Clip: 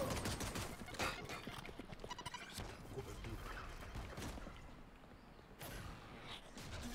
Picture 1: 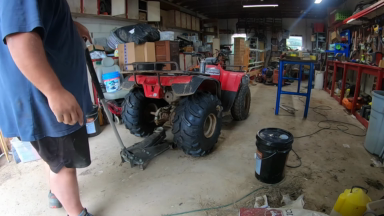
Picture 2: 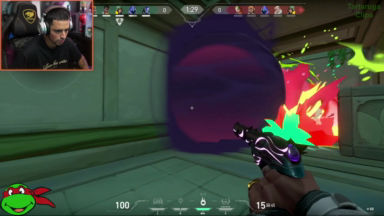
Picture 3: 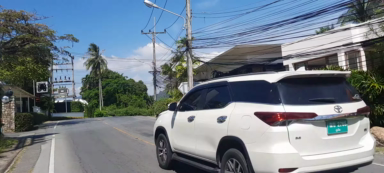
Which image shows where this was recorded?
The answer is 2